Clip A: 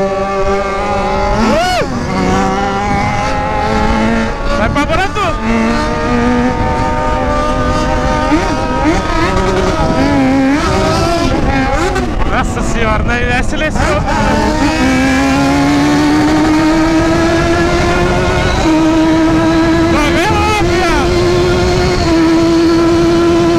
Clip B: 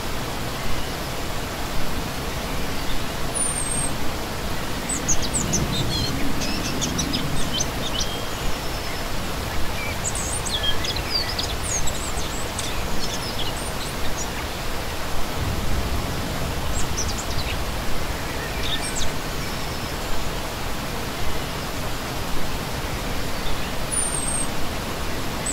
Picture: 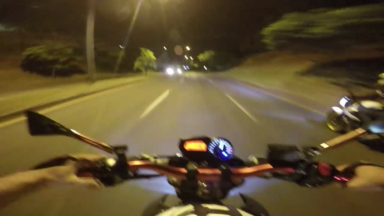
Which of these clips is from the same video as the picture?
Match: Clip A